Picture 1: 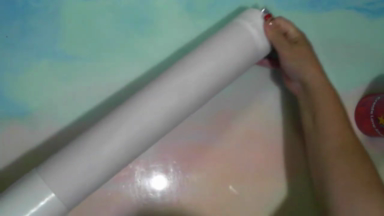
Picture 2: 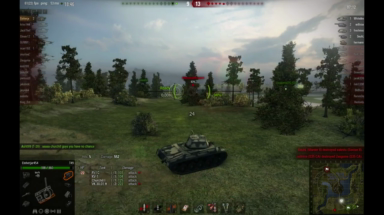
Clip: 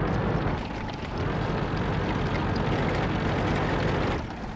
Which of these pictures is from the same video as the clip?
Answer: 2